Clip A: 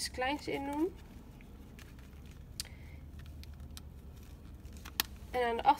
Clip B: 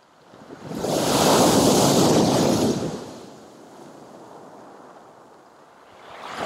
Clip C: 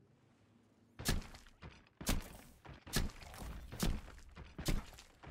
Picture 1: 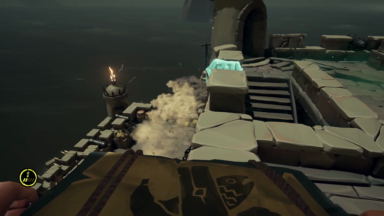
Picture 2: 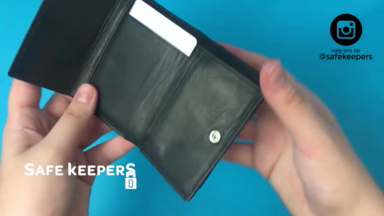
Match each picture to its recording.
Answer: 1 C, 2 A